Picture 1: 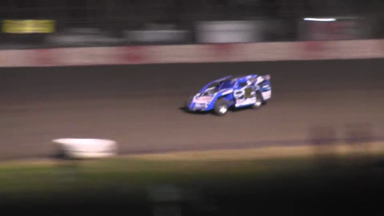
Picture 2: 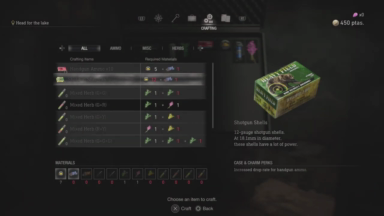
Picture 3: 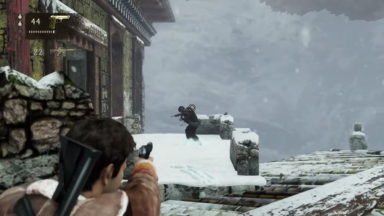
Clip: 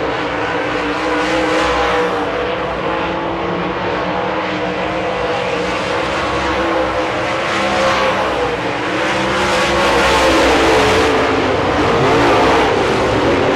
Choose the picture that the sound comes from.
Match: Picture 1